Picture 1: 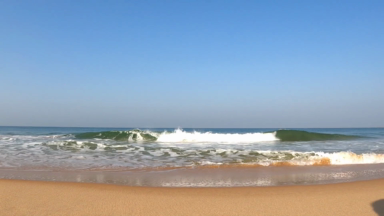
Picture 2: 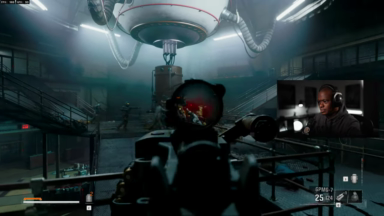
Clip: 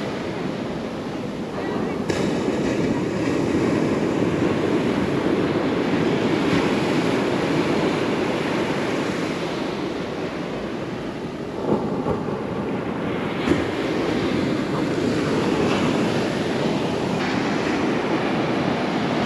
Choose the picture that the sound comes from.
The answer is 1